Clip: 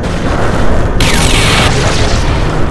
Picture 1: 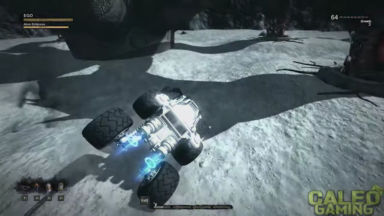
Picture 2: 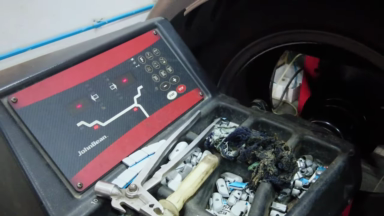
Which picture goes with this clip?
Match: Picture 1